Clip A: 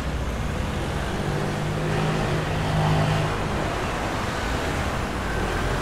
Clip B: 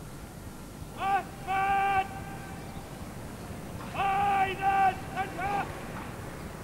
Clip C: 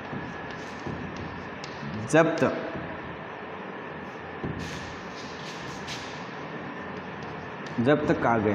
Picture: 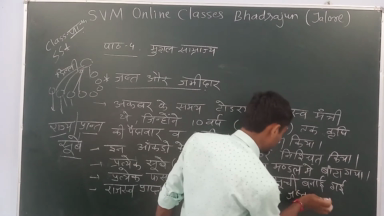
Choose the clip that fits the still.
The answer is C